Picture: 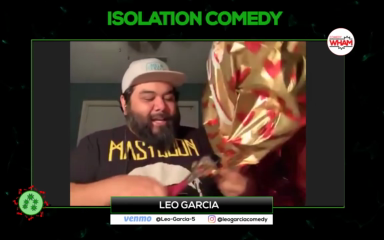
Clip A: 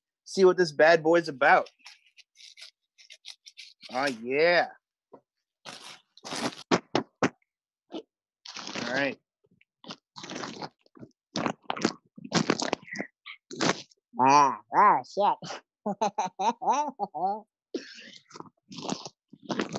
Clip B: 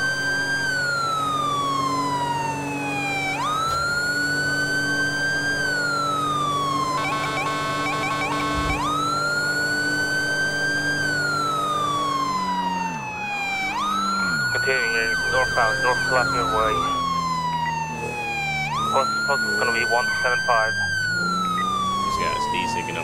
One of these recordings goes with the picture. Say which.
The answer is A